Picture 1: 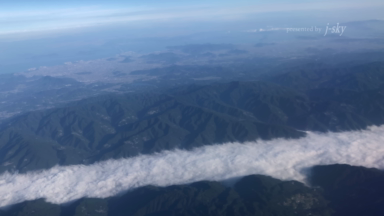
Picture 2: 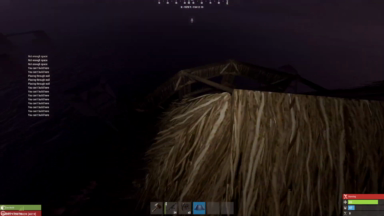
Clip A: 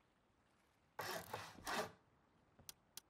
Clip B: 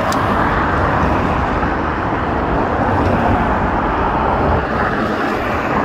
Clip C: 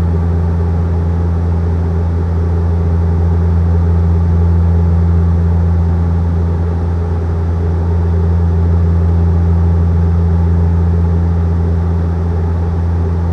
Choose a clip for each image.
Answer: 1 C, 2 A